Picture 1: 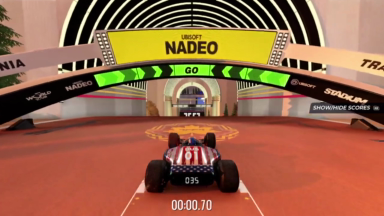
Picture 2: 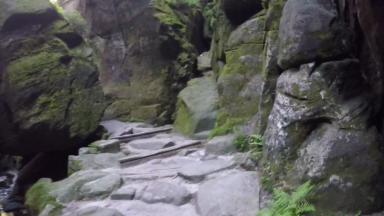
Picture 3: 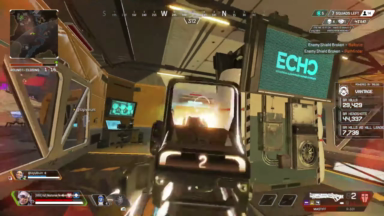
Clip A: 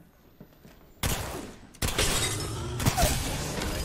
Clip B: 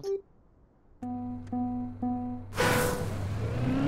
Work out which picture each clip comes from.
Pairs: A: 3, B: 1